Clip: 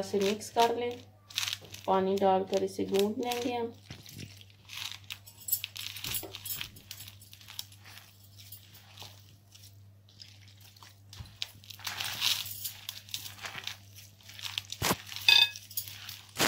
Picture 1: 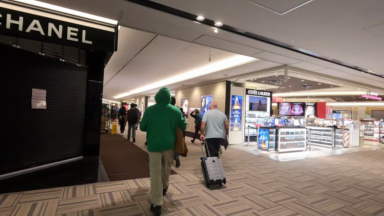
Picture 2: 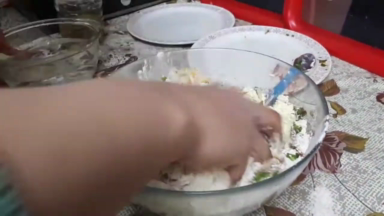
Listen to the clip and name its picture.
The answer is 2